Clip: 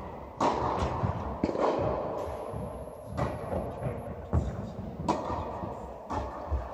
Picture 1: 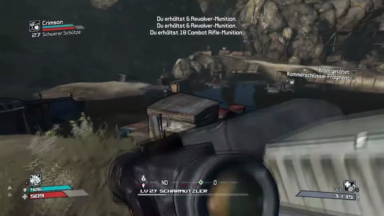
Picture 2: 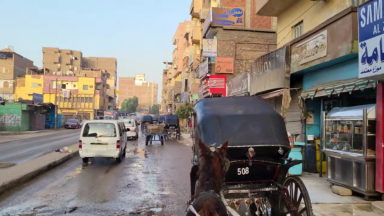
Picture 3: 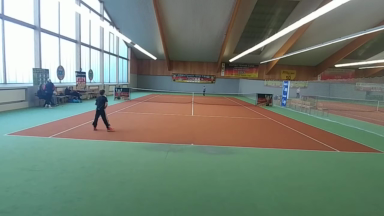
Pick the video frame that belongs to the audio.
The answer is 3